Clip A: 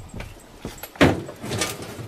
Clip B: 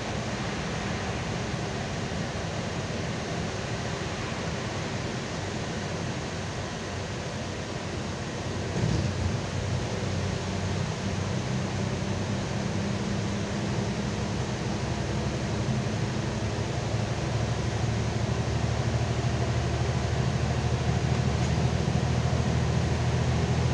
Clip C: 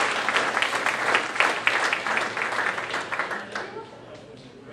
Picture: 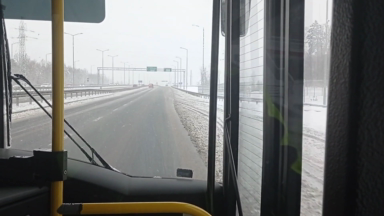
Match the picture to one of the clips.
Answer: B